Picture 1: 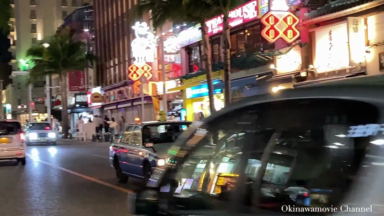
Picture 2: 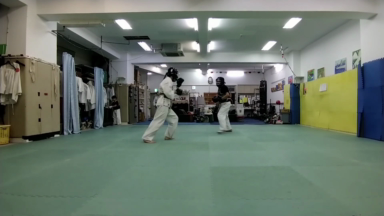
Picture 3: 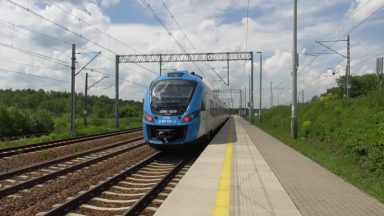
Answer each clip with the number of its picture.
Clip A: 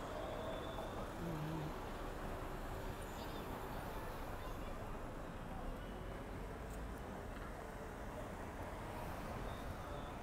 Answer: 1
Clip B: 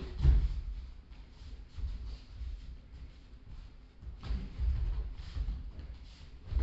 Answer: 2